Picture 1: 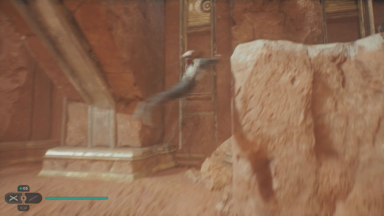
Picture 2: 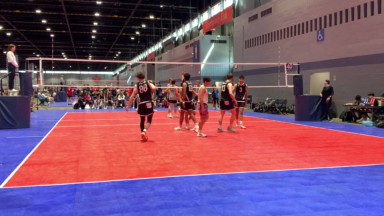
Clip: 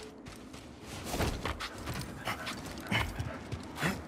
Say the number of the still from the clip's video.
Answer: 1